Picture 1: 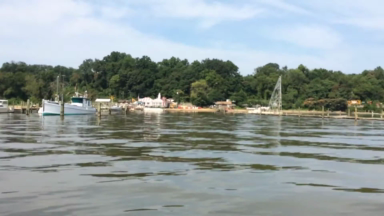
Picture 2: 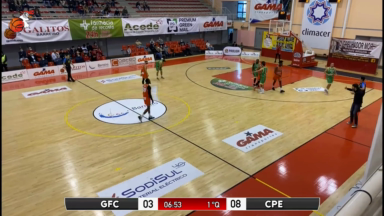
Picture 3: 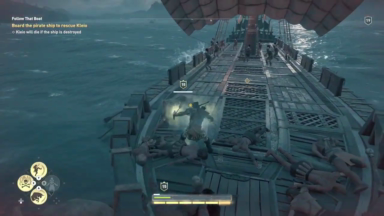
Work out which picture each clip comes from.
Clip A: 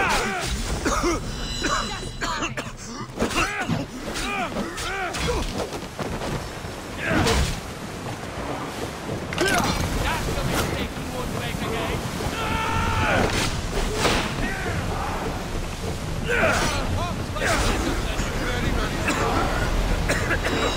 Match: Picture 3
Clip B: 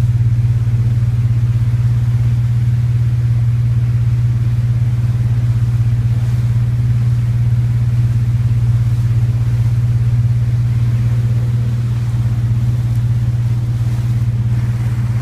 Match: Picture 1